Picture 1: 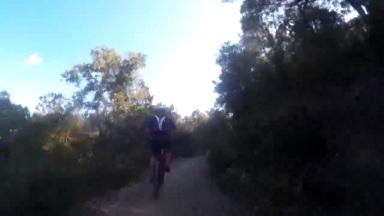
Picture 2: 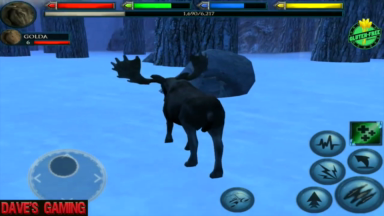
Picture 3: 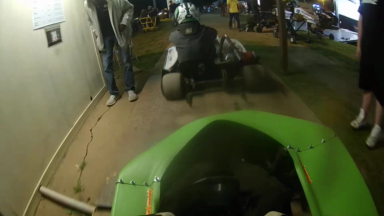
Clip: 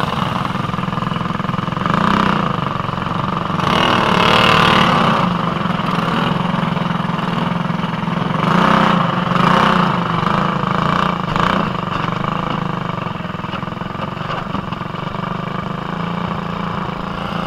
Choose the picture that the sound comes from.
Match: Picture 3